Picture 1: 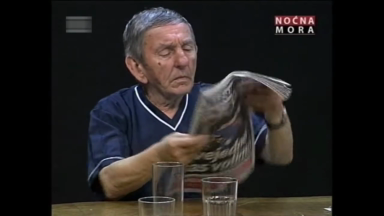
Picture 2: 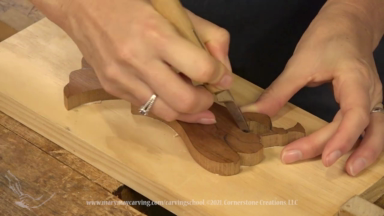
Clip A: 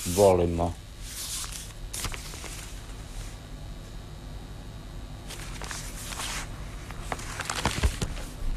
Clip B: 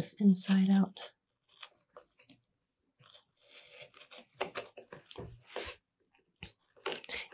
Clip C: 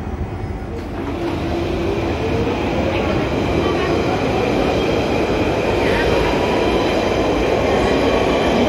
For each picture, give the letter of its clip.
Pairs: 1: A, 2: B